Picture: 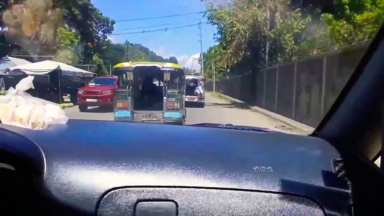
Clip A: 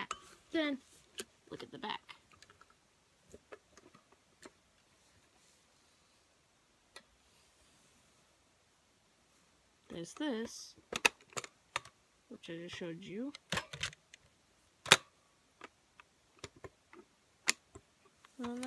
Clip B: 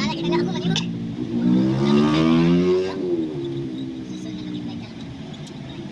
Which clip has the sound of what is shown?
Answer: B